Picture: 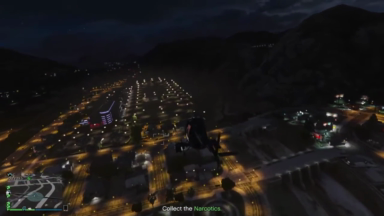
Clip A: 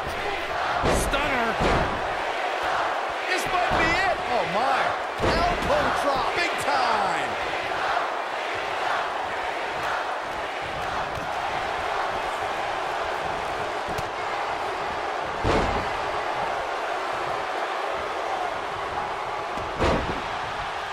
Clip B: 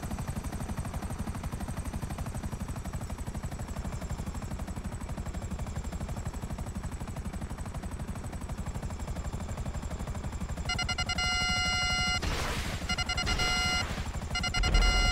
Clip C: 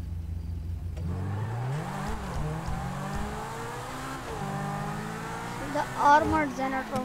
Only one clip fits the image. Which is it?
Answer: B